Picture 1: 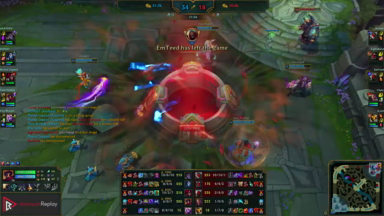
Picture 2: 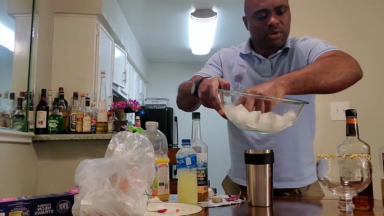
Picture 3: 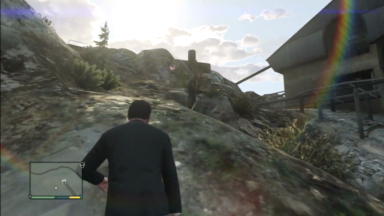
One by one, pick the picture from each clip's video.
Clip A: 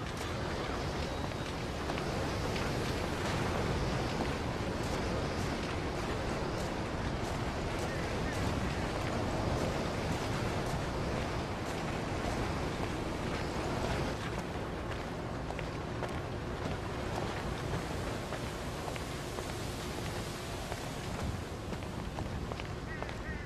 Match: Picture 3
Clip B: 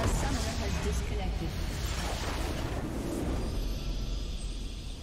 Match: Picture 1